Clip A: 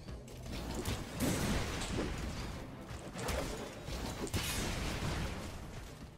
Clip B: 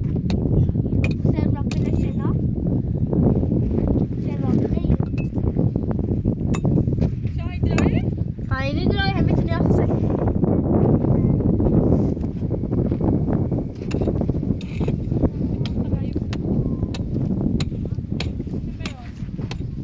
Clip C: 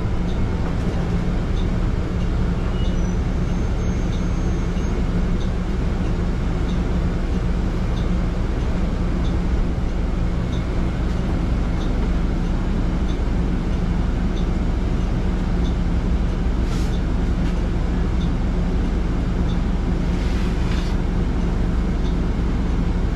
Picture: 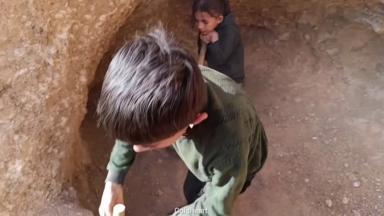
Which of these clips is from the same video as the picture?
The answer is B